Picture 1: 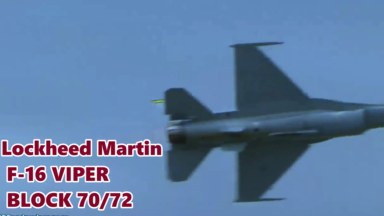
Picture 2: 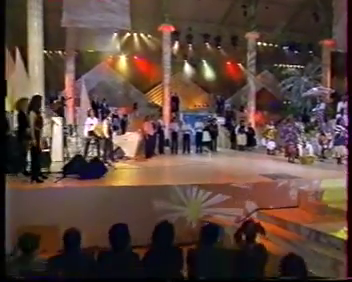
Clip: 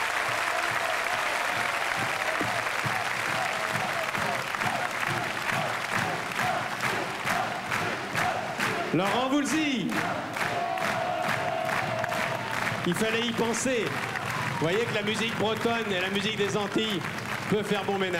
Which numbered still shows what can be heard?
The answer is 2